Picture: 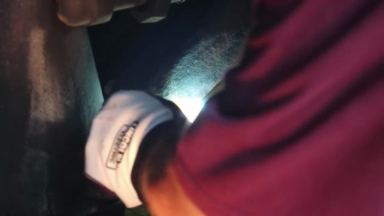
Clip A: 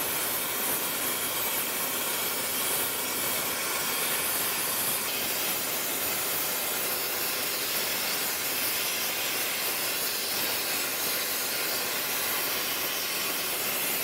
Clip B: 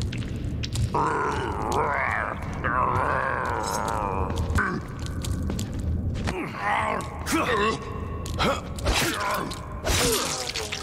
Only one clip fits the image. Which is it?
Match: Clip A